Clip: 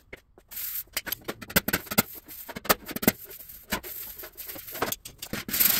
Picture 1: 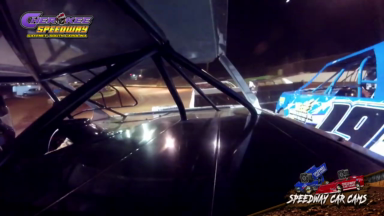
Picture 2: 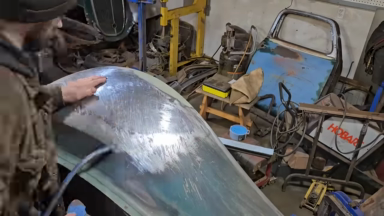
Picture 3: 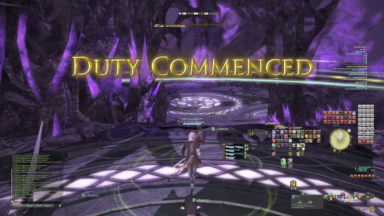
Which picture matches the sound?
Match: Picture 2